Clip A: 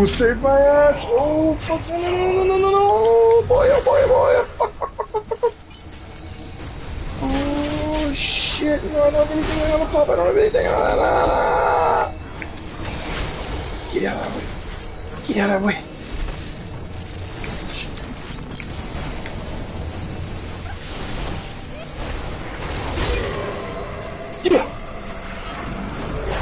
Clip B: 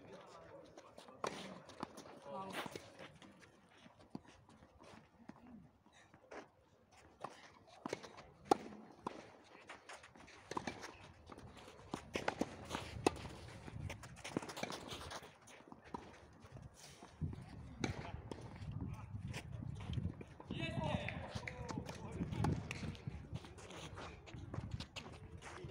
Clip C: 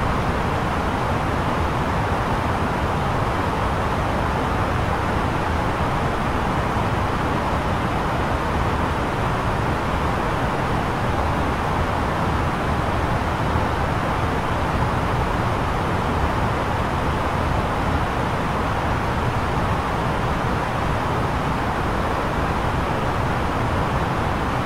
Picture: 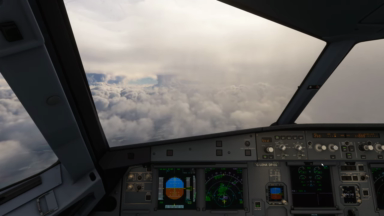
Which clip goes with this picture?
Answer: C